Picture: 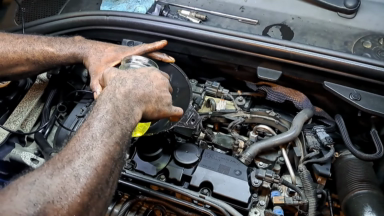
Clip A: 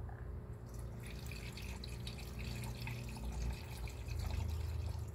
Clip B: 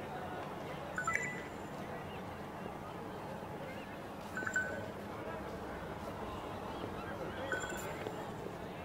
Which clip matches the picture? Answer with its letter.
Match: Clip A